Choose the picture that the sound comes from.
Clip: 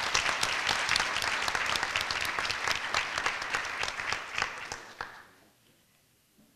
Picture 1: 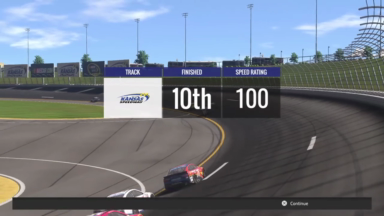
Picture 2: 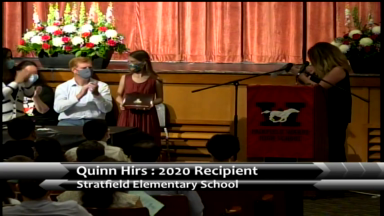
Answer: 2